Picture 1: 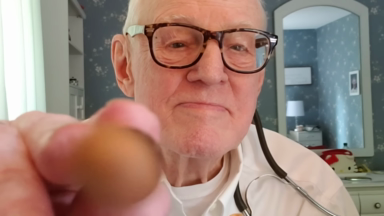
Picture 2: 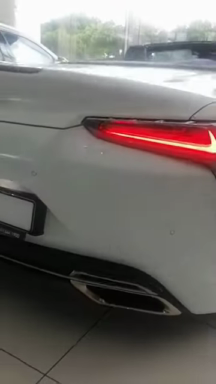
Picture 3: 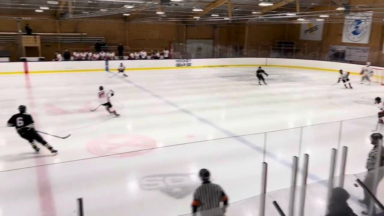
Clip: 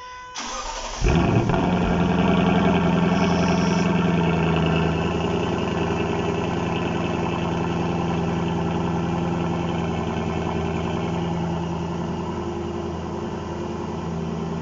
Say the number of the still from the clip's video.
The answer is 2